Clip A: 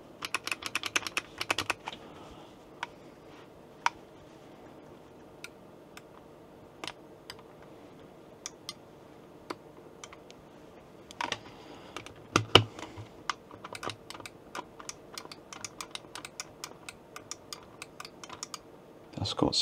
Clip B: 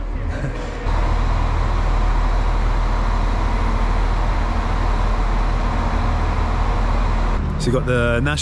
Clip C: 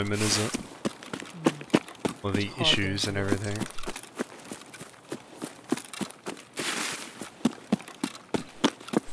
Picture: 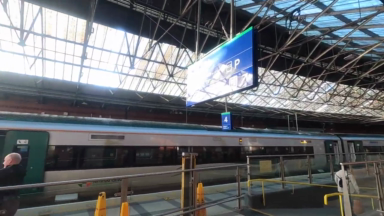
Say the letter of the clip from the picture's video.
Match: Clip B